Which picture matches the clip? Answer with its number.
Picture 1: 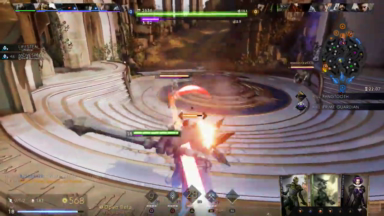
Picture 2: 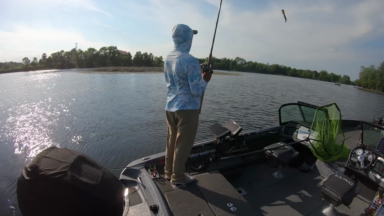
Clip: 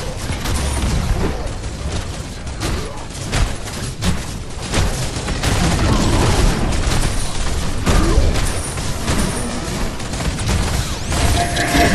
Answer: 1